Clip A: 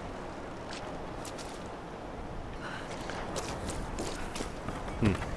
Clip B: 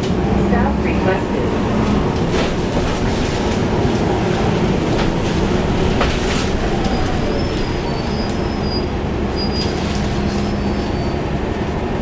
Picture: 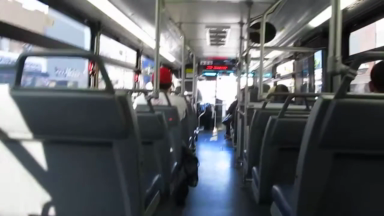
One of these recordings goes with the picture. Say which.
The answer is B